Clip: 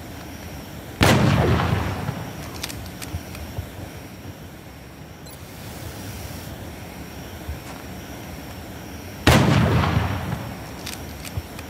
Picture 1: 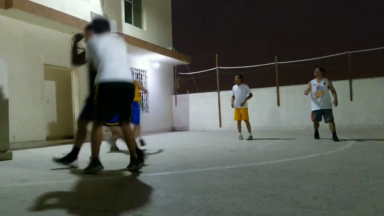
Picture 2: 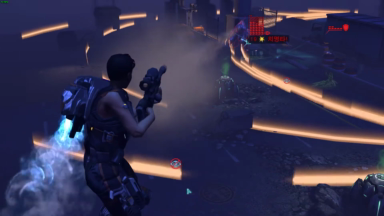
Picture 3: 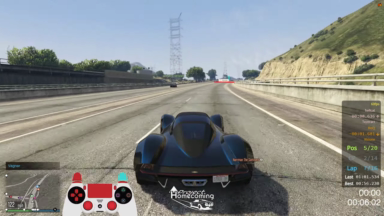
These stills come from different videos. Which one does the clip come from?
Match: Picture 2